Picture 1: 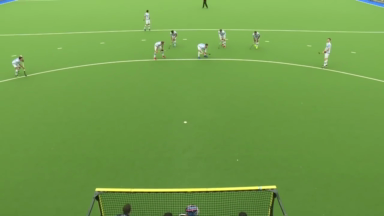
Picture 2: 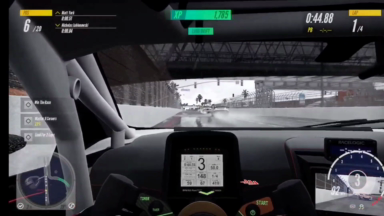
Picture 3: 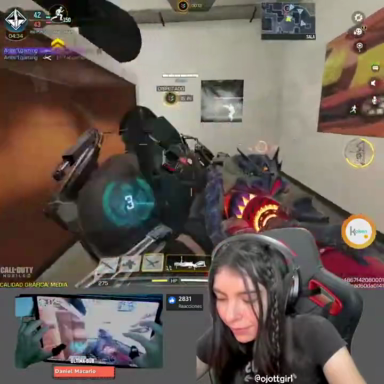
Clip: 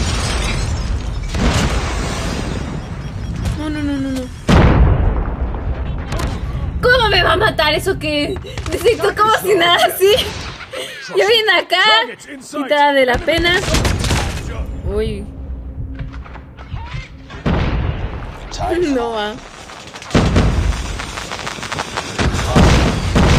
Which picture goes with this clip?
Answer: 3